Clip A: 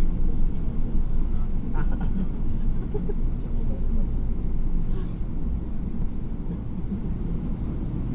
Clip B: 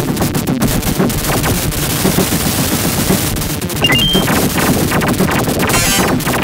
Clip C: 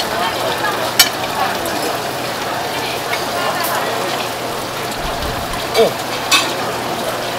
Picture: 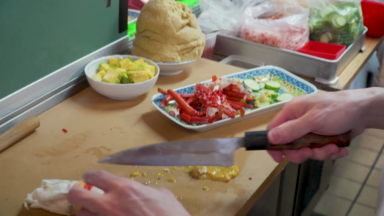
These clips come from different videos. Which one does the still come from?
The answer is C